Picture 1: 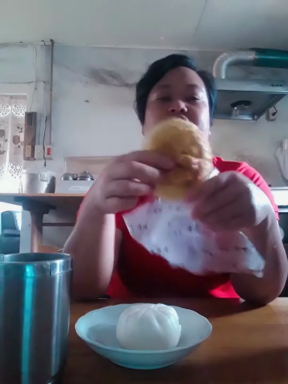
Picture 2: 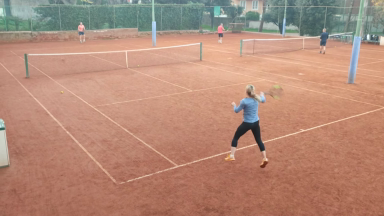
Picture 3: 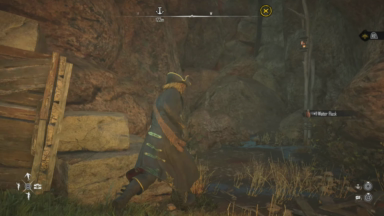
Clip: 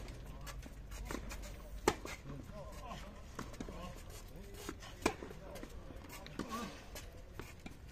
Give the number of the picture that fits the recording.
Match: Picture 2